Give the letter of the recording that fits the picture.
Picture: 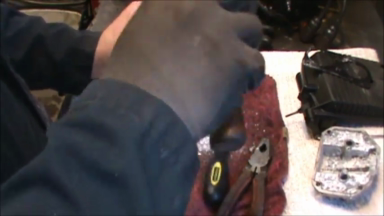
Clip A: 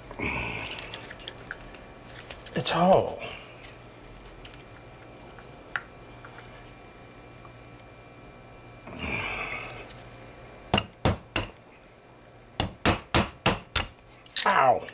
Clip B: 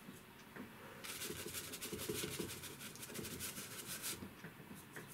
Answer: A